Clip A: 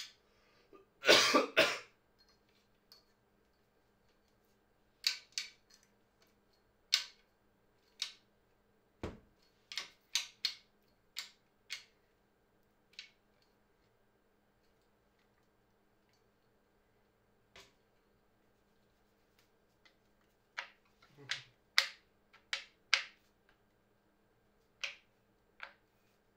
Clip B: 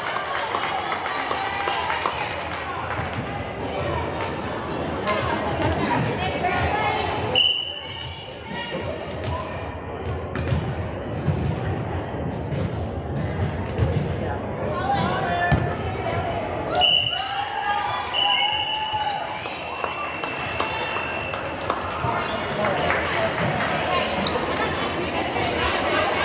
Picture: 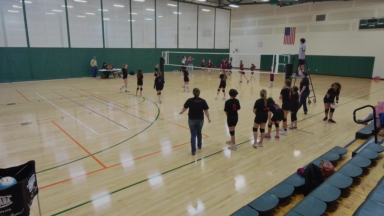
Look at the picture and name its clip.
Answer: B